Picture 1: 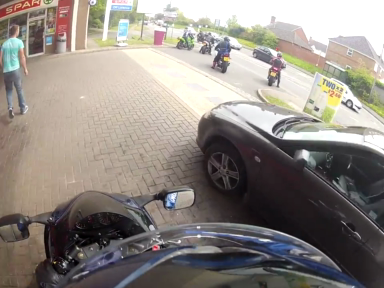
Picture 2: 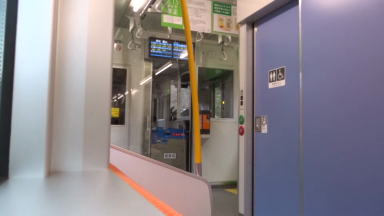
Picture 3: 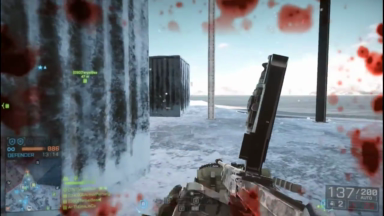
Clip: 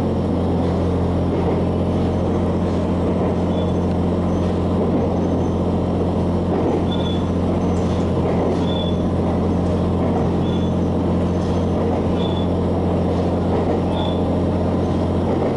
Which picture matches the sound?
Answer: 2